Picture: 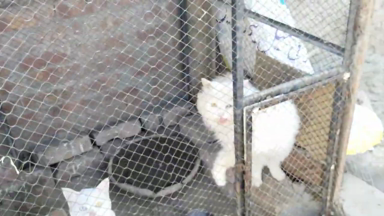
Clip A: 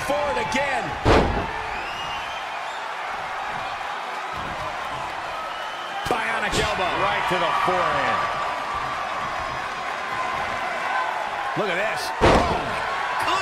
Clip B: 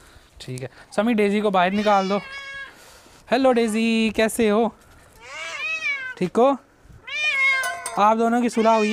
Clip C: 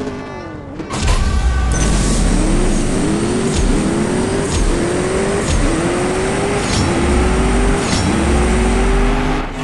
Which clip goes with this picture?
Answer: B